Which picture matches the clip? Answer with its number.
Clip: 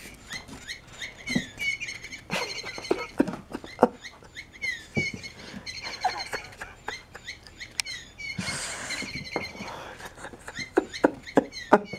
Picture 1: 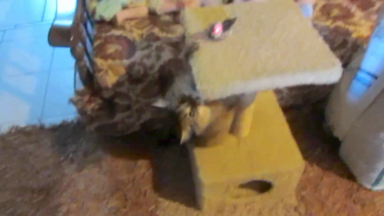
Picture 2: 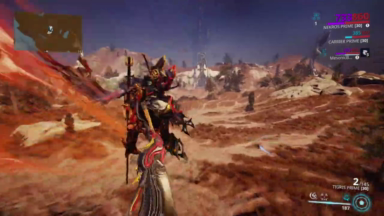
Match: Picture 1